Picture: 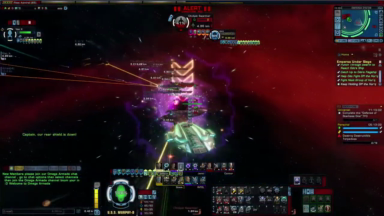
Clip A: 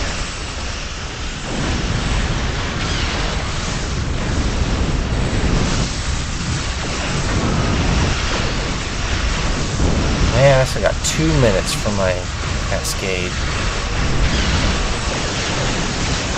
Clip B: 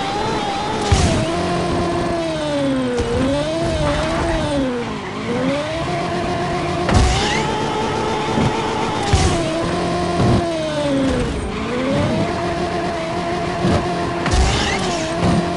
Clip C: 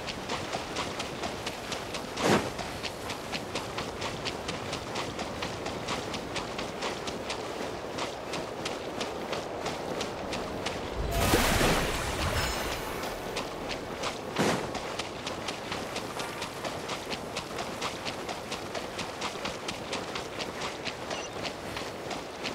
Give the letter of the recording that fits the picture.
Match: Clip A